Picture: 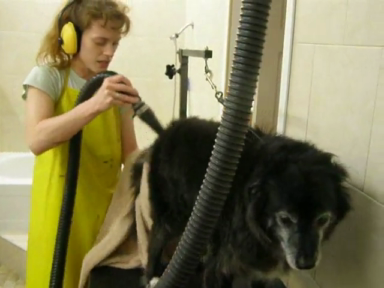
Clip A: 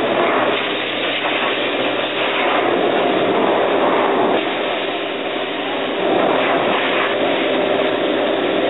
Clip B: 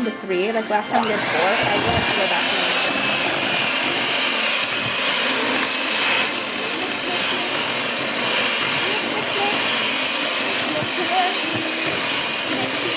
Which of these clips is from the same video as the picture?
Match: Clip A